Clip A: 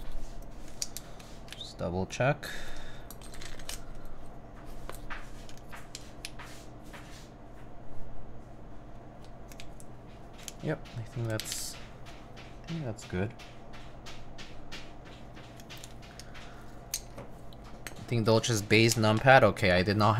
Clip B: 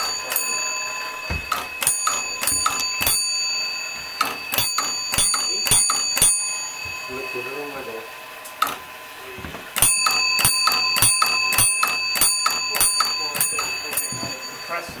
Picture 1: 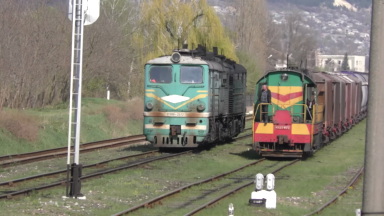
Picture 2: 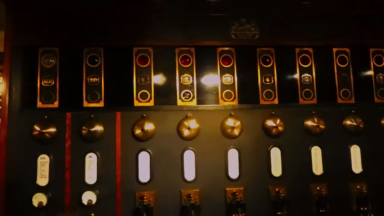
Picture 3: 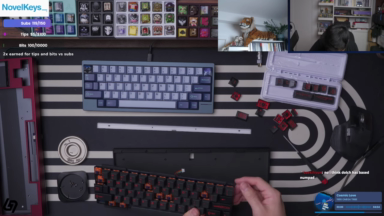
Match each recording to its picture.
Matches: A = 3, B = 2